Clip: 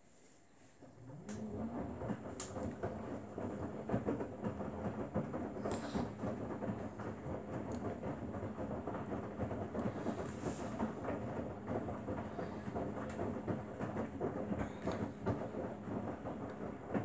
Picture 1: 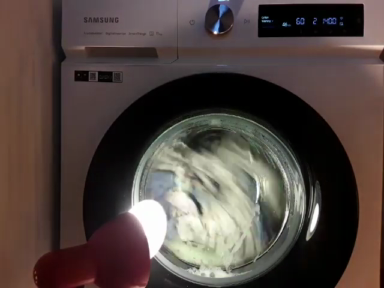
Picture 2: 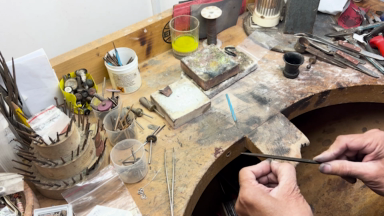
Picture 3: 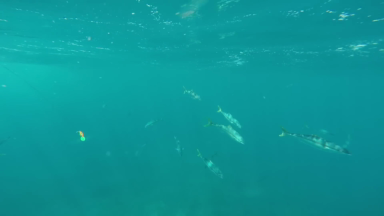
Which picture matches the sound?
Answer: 1